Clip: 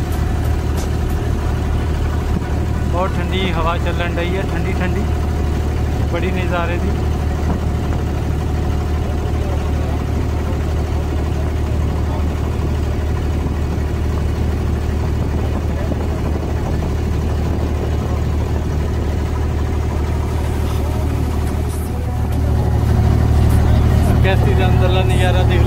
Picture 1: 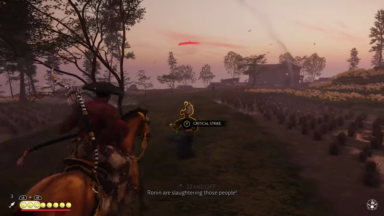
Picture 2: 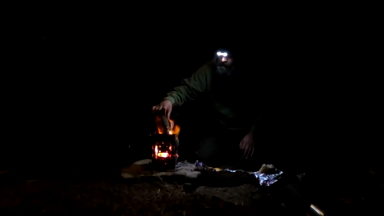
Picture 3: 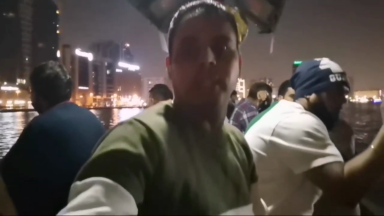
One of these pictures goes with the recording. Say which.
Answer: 3